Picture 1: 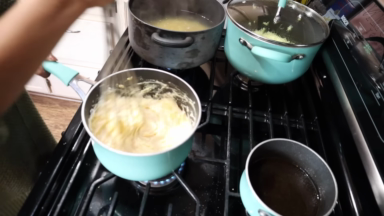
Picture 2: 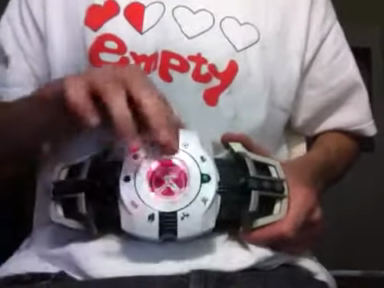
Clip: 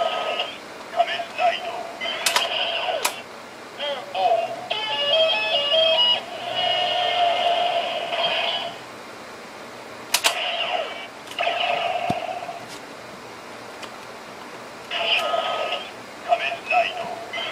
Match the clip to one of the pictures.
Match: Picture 2